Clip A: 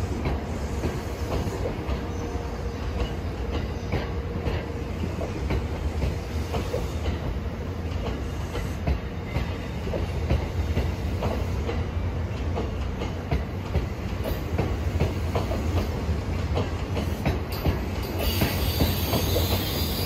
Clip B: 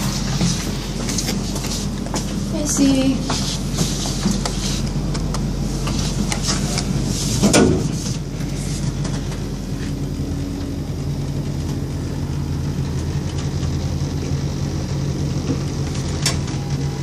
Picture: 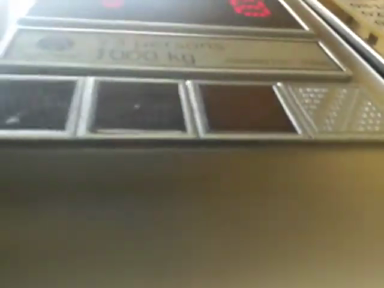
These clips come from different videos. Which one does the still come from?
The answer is B